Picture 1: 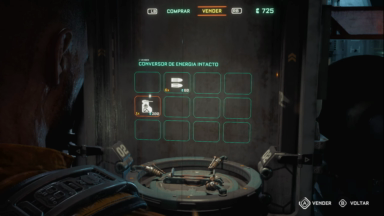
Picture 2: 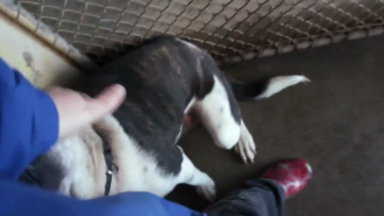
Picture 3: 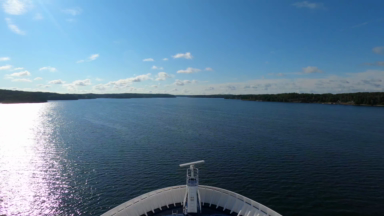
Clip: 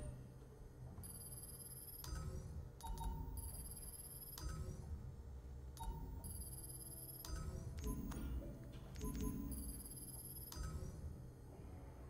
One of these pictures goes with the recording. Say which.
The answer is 1